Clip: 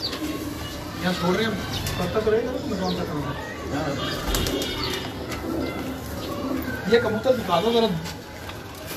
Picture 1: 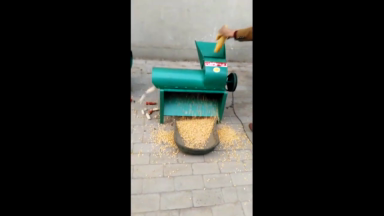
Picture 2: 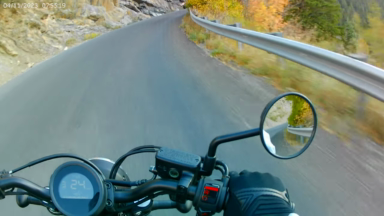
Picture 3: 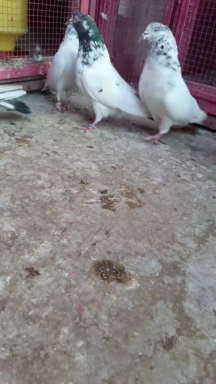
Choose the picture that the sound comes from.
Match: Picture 3